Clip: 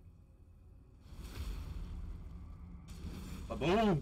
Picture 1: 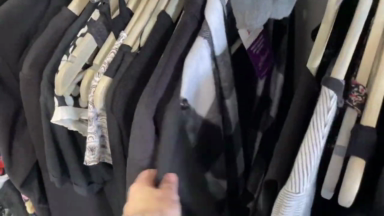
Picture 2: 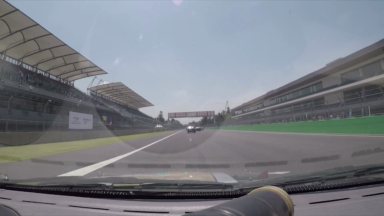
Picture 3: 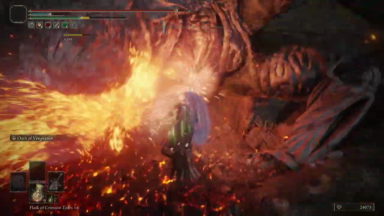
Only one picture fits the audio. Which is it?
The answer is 3